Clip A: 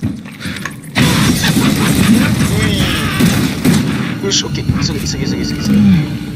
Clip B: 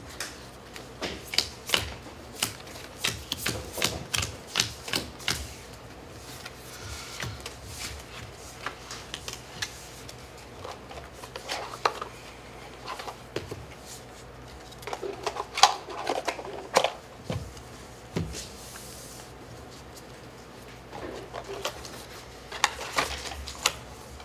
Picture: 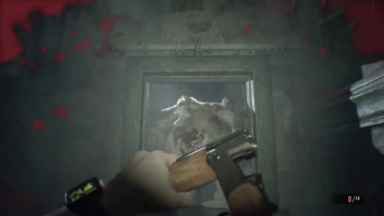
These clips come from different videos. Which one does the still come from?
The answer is A